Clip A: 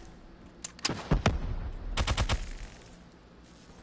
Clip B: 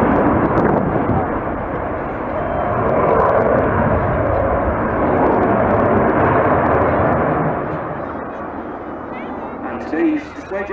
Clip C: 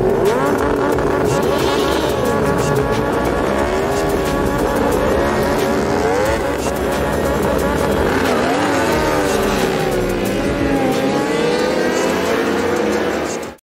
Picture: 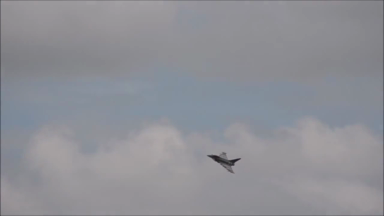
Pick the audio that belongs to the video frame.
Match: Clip B